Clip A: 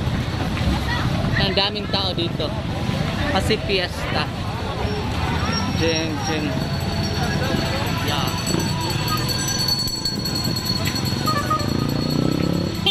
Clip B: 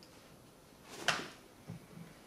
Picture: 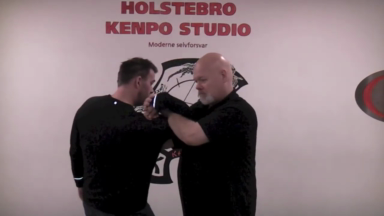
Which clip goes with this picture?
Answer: B